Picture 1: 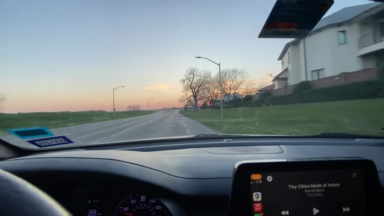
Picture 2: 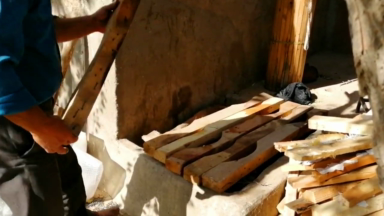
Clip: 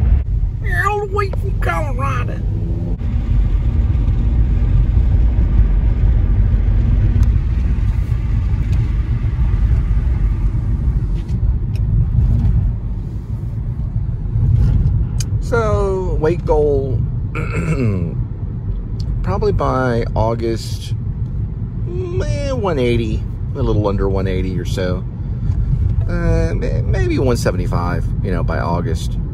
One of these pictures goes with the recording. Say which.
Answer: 1